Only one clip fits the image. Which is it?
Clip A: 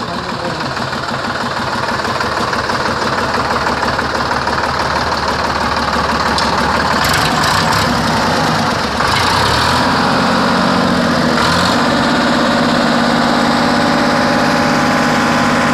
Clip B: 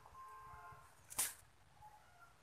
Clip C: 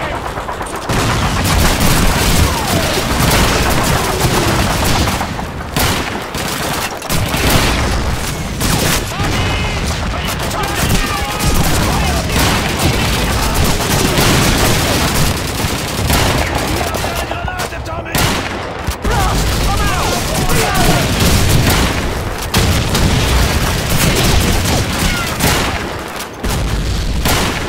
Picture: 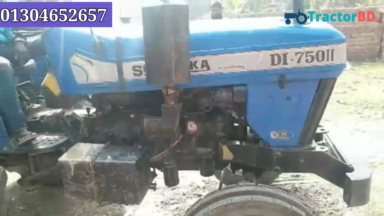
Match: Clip A